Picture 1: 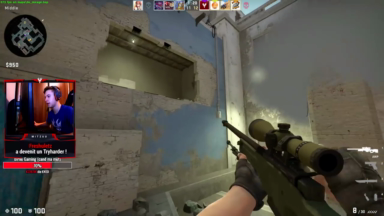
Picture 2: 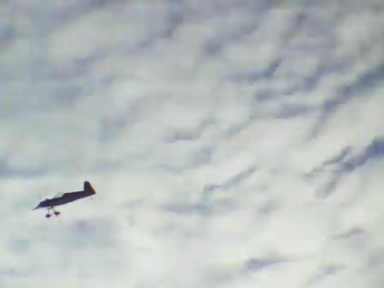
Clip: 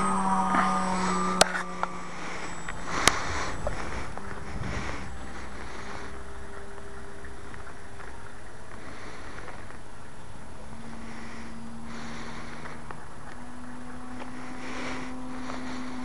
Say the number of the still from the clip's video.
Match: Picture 2